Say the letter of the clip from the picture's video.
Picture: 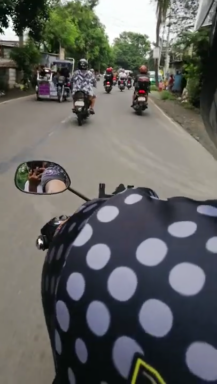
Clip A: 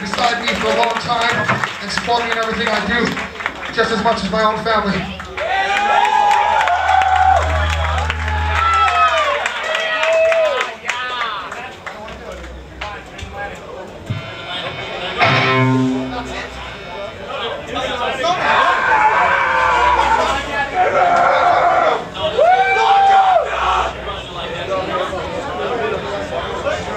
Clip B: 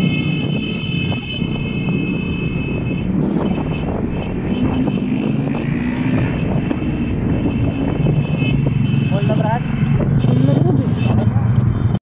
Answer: B